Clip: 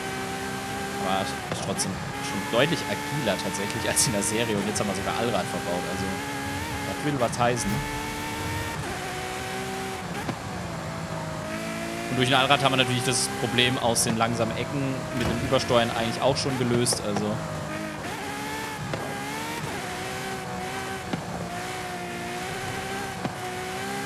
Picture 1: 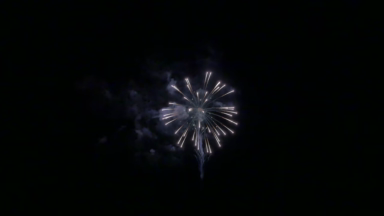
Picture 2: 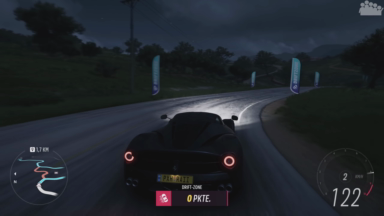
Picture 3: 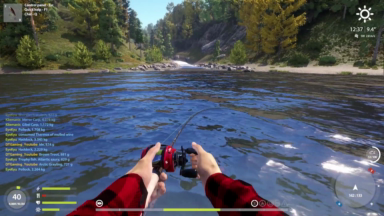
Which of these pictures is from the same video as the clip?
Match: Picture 2